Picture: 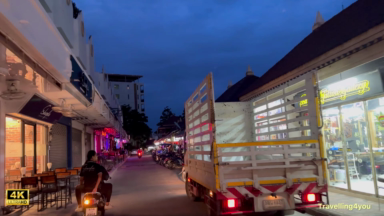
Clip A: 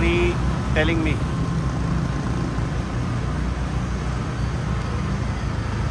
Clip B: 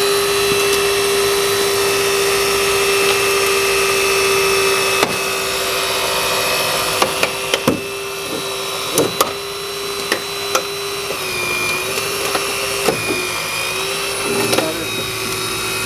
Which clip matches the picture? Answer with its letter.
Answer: A